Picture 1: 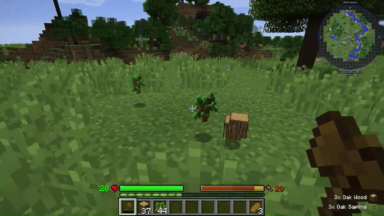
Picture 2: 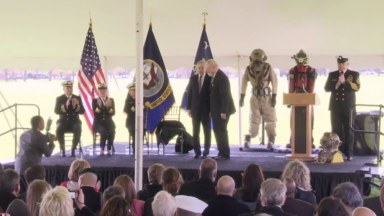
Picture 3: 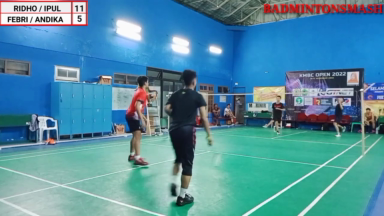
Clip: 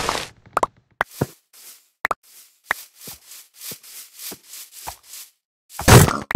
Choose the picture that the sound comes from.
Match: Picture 1